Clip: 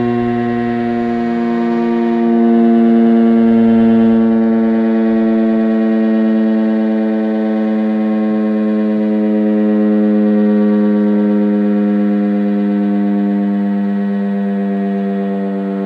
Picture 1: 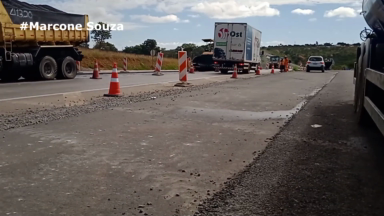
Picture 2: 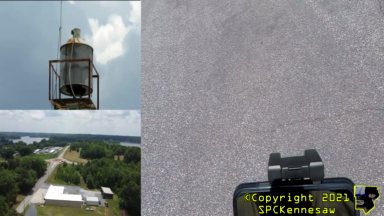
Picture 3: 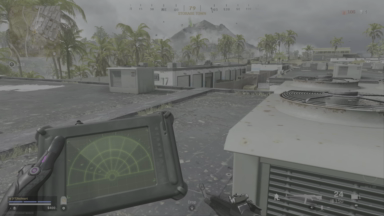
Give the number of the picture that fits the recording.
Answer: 2